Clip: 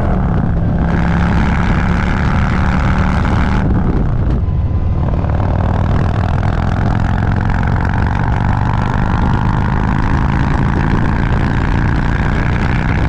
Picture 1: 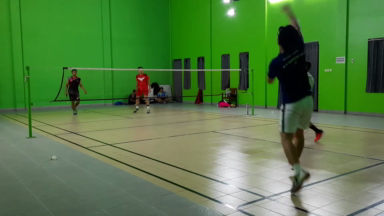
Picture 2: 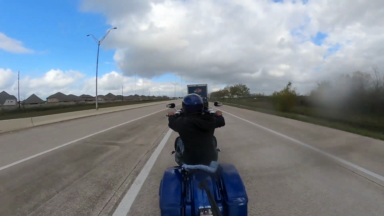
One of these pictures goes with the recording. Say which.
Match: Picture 2